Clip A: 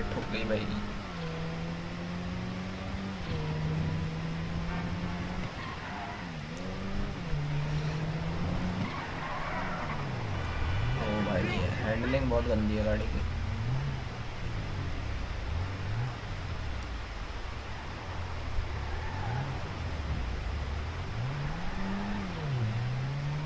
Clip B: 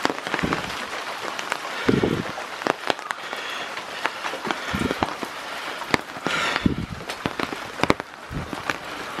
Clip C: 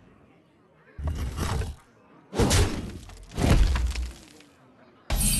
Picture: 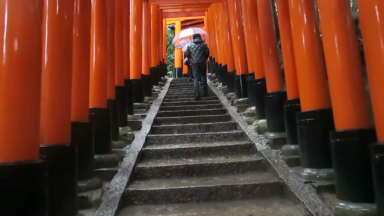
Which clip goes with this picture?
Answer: B